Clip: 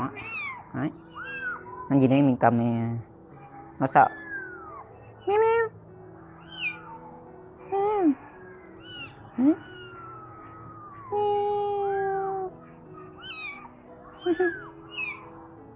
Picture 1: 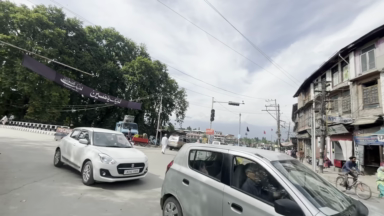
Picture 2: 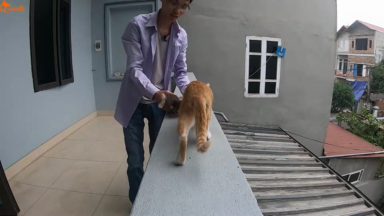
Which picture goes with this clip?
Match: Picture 2